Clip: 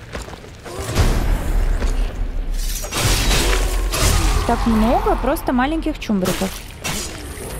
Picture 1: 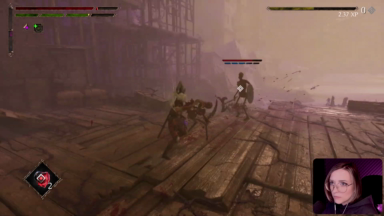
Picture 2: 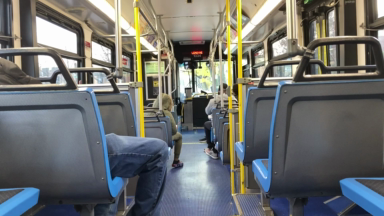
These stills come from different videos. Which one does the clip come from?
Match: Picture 1